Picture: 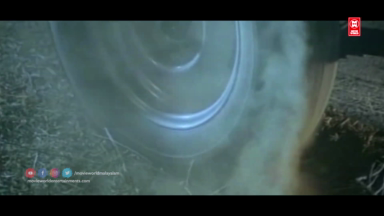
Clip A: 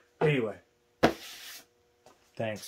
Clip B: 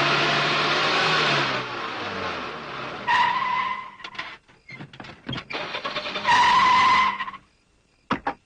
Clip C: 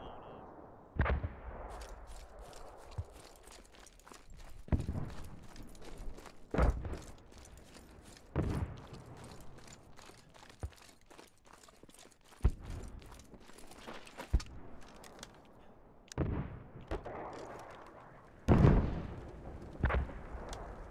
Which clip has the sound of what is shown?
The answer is B